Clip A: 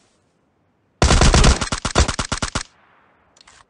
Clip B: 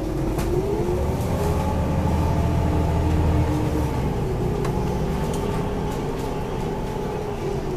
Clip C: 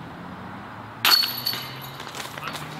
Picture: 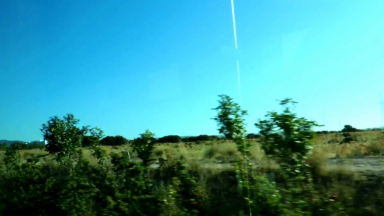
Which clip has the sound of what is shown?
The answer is B